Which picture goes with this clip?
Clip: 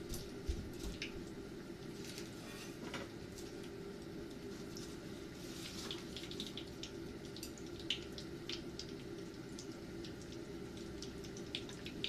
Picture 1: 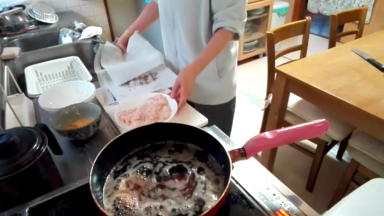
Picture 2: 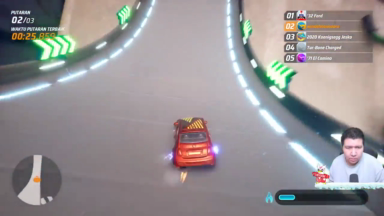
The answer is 1